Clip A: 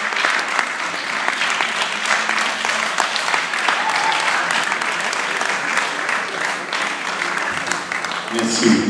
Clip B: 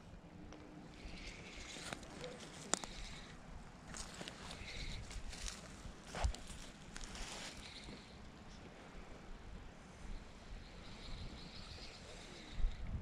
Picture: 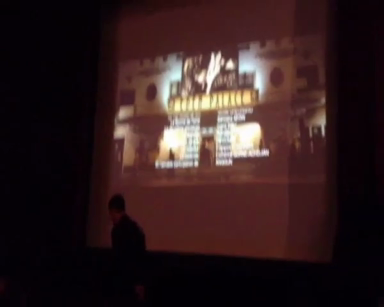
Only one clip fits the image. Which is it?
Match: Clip A